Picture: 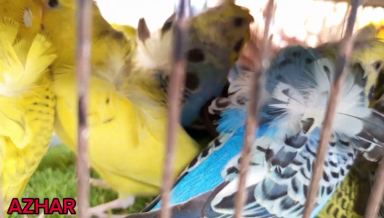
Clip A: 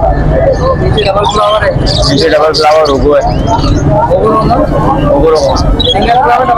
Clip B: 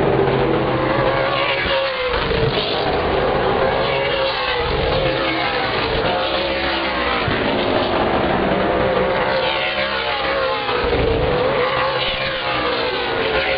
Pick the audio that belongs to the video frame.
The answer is A